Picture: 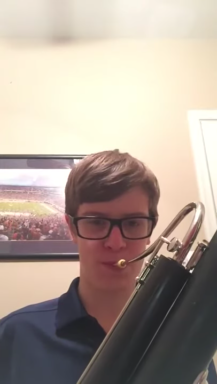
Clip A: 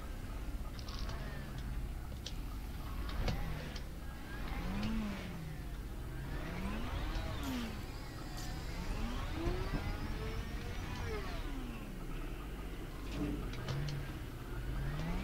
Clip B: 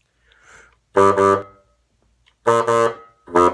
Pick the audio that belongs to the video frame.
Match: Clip B